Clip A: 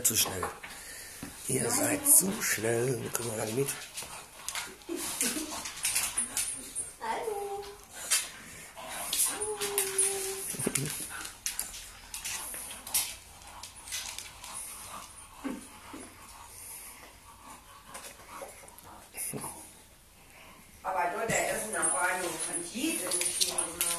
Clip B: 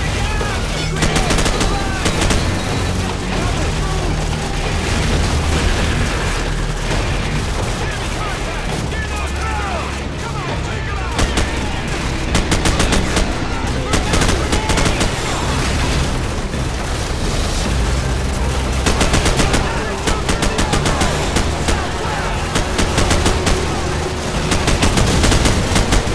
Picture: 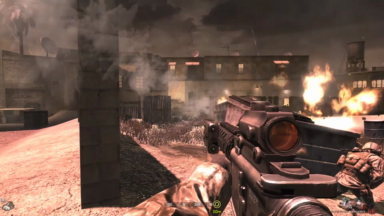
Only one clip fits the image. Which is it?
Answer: B